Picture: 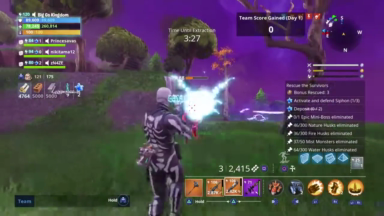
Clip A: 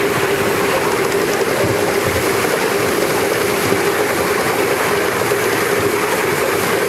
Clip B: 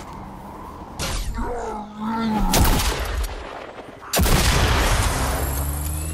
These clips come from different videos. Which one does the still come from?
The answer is B